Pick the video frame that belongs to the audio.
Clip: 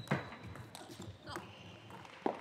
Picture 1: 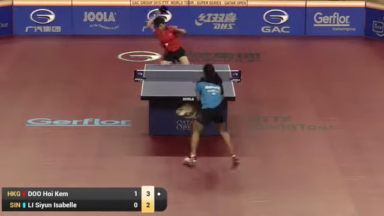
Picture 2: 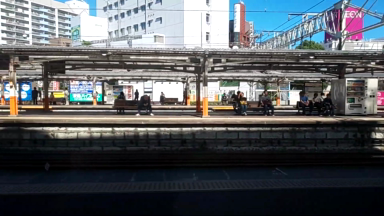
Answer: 1